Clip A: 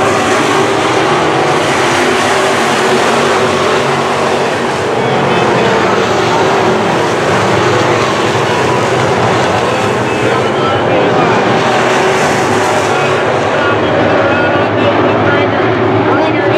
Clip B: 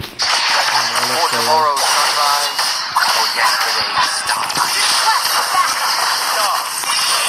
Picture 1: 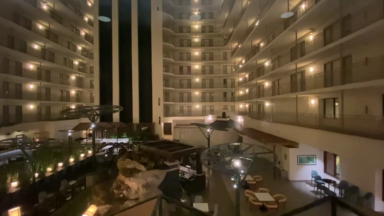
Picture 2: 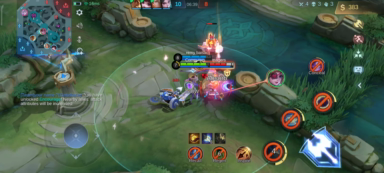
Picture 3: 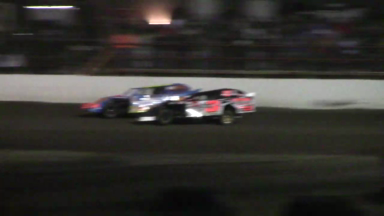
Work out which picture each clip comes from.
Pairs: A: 3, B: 2